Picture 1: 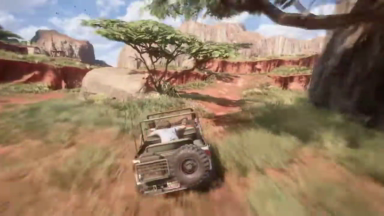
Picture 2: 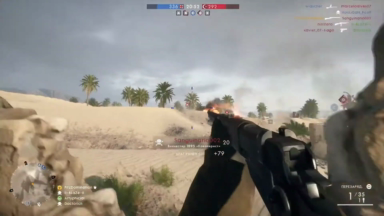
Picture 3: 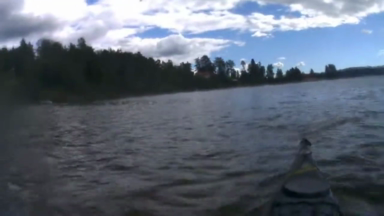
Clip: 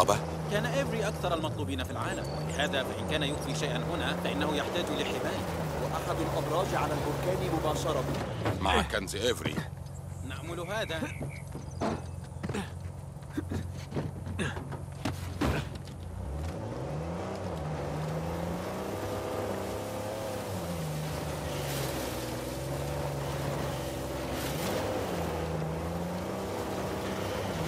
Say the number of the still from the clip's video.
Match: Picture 1